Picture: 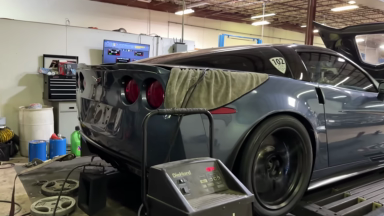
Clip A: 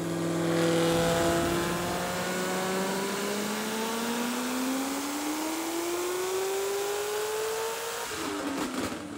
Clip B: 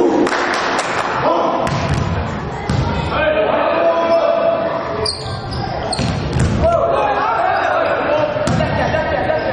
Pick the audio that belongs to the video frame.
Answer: A